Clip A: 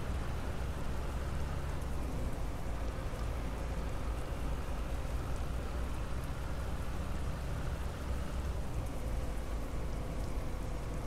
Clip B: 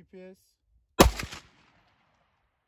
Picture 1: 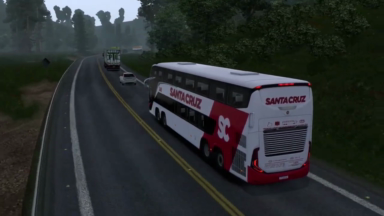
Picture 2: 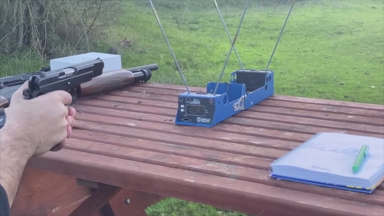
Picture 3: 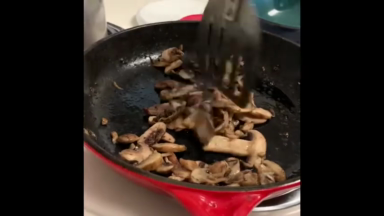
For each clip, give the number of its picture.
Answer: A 1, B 2